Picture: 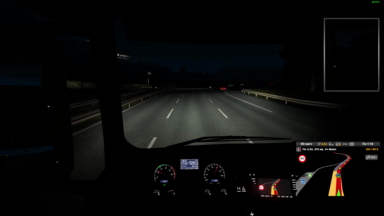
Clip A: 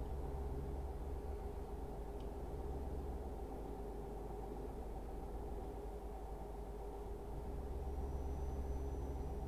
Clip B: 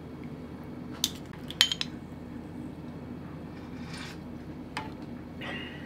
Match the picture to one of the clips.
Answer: A